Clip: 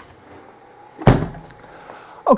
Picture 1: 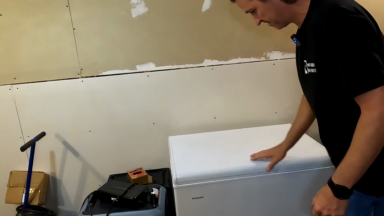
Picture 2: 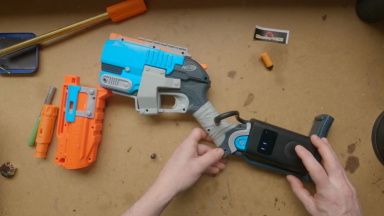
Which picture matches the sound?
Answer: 1